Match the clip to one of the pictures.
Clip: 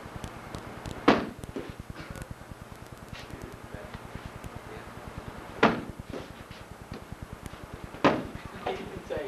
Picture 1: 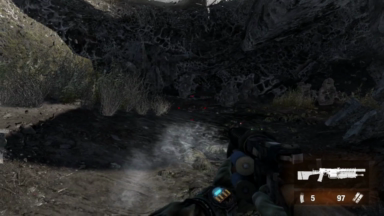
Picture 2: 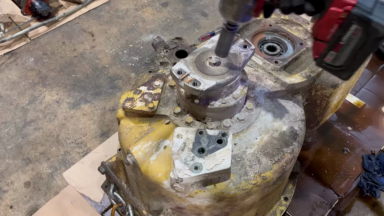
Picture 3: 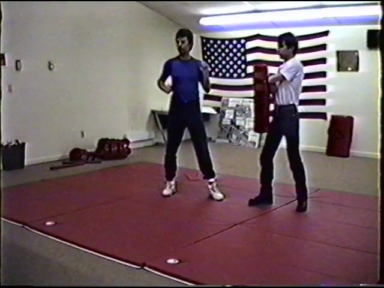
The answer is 3